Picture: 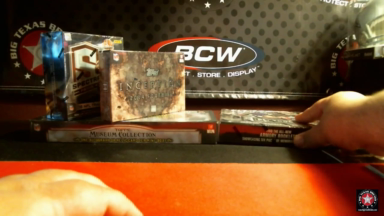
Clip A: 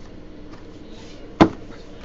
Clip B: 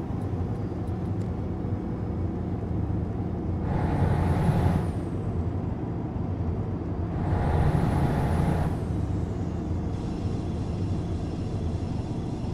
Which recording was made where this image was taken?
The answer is A